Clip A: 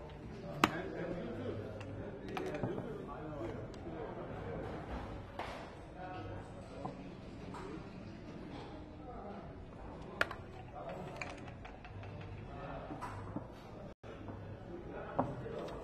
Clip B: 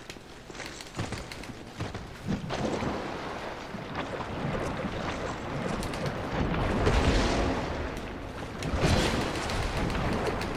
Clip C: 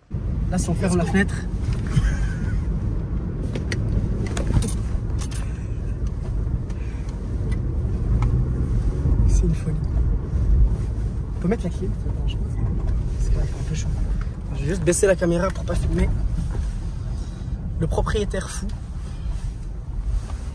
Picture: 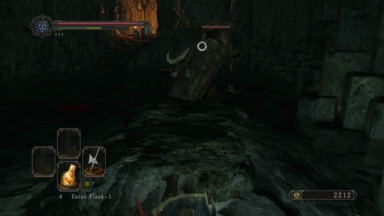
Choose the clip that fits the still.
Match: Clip B